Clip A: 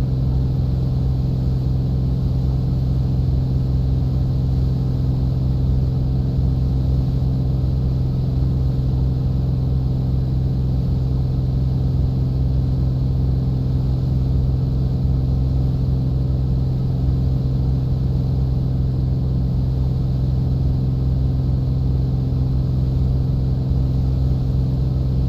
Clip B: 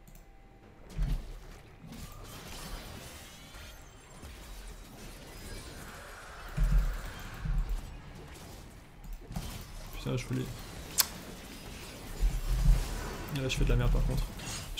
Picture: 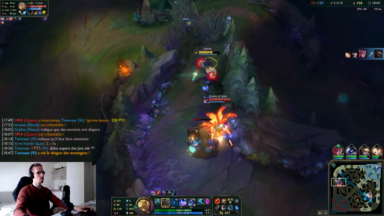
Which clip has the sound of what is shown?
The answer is B